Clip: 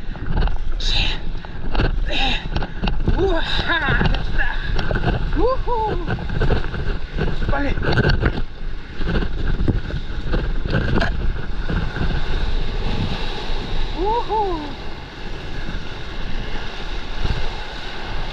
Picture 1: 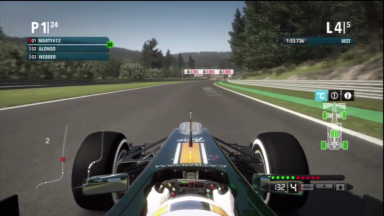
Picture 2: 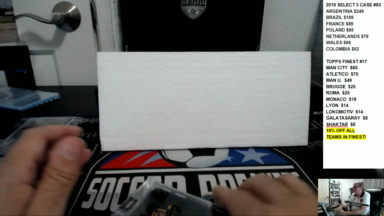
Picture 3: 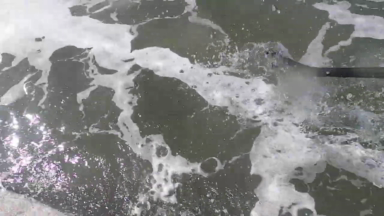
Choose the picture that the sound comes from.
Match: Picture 3